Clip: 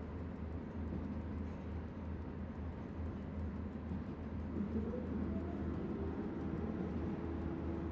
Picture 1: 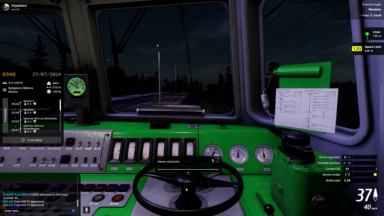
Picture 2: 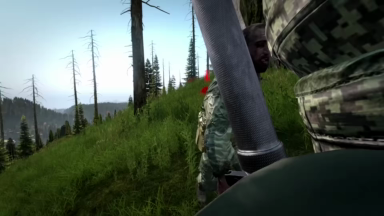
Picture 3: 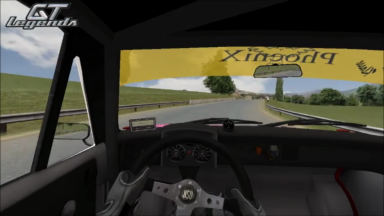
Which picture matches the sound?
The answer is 1